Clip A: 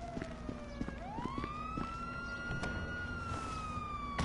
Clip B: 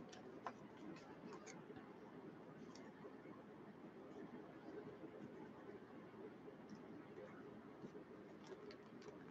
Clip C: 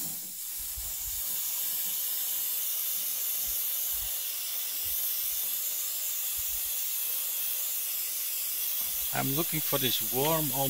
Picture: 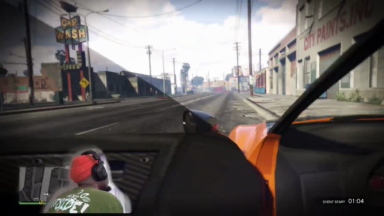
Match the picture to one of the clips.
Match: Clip A